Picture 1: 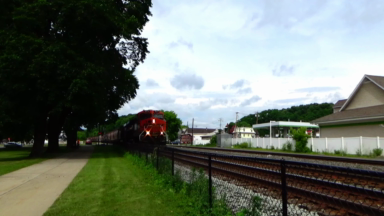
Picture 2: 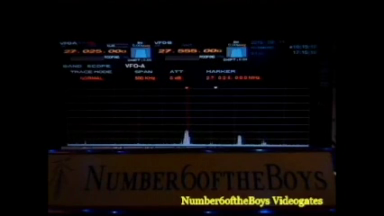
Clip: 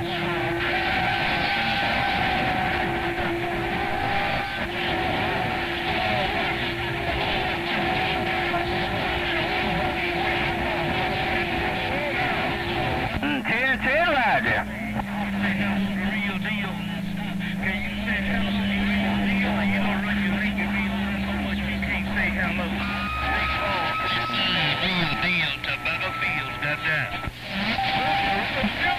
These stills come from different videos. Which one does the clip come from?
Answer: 2